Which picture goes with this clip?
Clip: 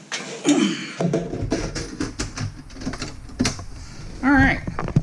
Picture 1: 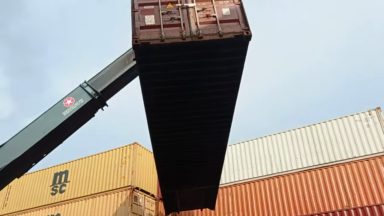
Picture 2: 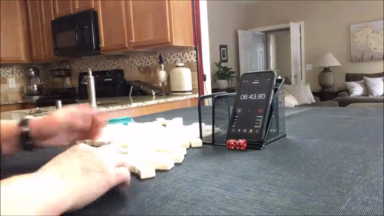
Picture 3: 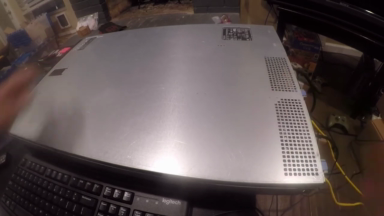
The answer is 3